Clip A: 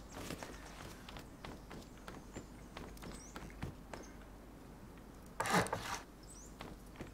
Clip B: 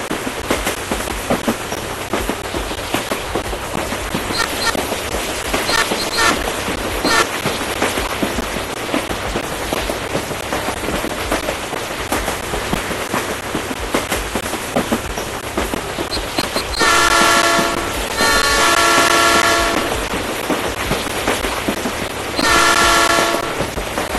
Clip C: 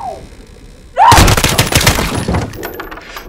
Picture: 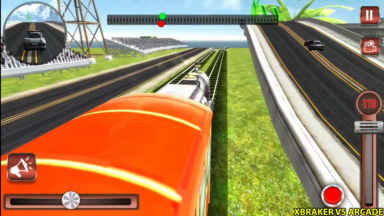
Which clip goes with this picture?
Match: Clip B